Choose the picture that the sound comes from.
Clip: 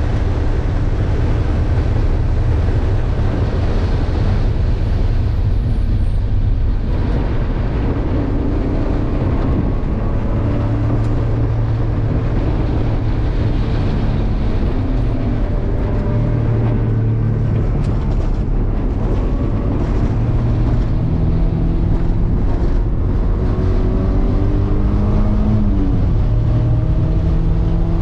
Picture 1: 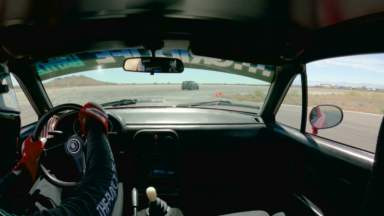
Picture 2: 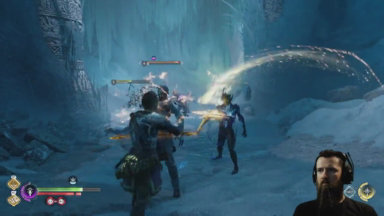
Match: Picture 1